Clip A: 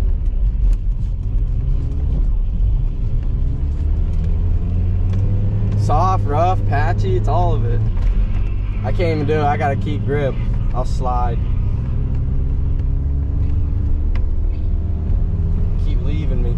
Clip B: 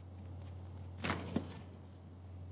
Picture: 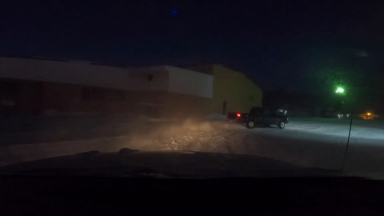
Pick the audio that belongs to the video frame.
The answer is A